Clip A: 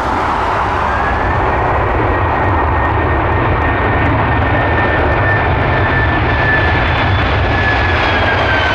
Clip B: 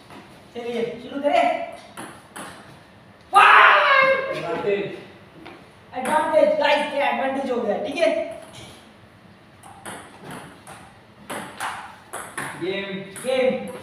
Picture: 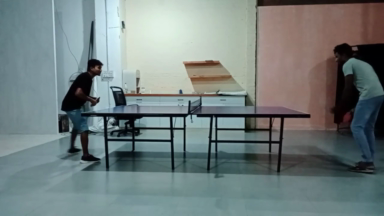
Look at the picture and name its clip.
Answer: B